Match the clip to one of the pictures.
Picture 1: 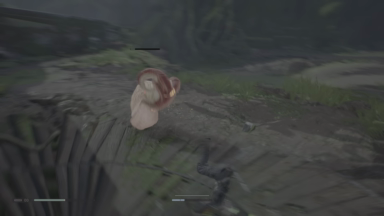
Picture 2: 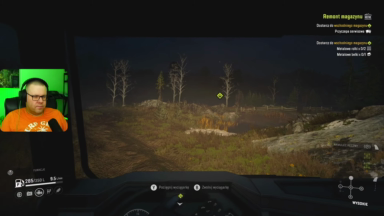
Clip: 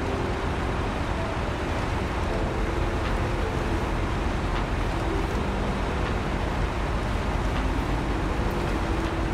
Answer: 2